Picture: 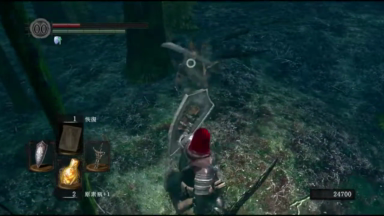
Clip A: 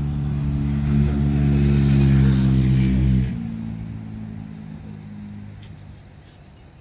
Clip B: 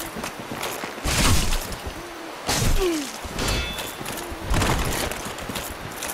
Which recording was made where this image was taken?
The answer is B